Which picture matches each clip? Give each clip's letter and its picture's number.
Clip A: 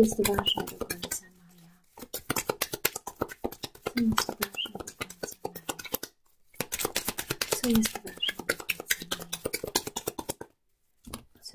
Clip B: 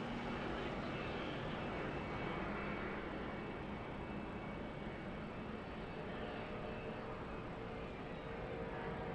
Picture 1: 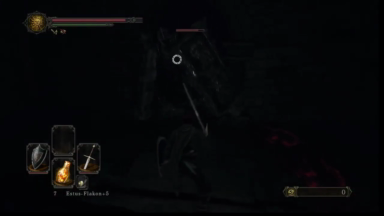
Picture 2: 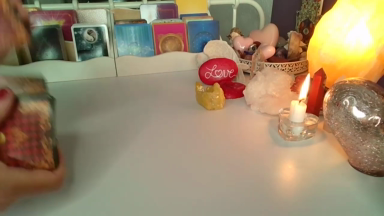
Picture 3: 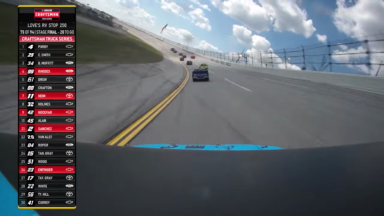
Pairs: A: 2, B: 3